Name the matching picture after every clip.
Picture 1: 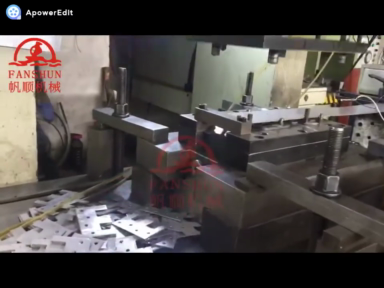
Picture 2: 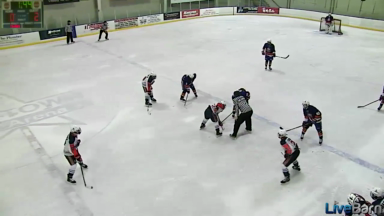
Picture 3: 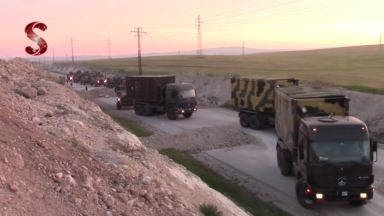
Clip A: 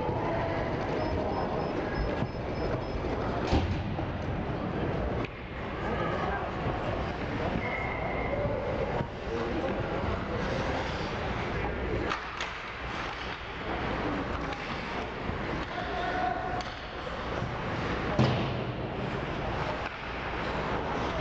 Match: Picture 2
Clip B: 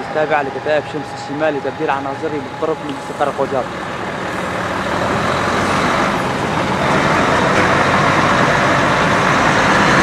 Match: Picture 3